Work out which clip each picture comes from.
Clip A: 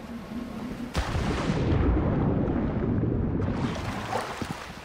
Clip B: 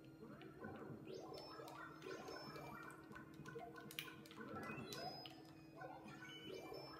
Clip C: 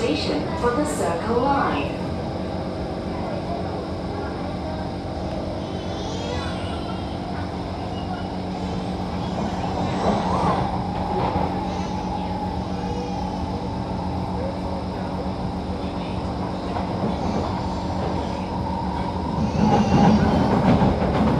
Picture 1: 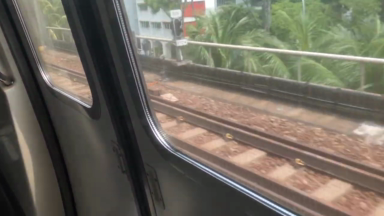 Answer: C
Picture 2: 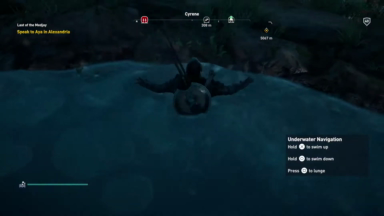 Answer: A